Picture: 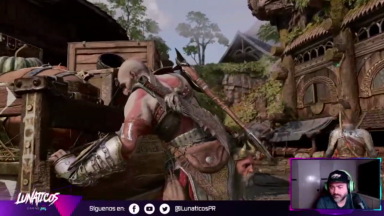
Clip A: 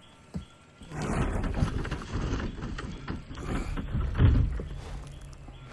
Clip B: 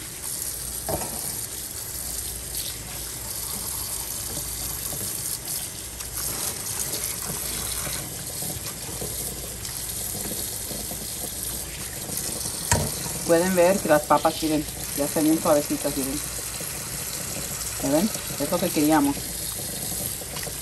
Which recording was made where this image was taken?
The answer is A